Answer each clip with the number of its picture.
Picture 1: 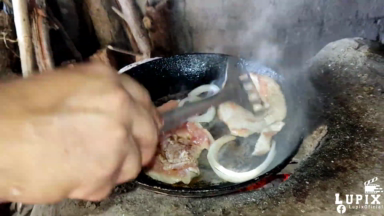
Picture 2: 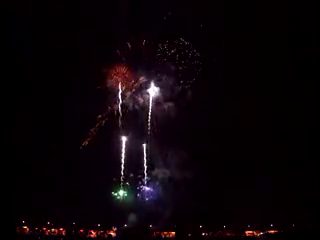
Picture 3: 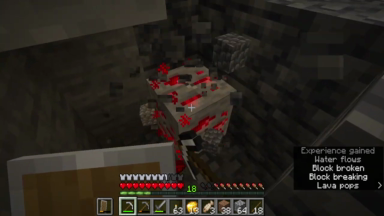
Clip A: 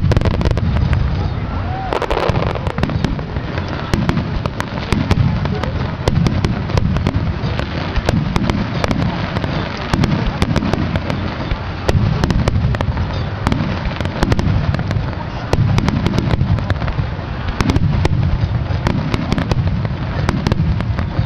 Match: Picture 2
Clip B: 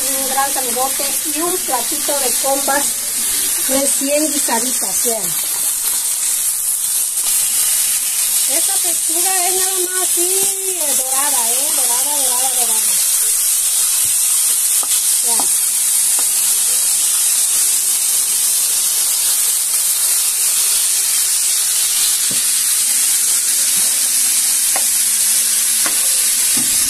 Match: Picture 1